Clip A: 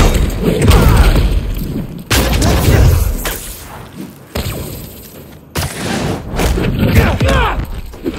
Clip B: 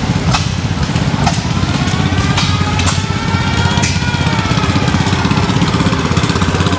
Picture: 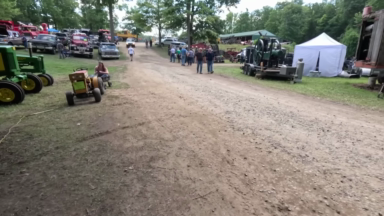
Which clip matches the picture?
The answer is B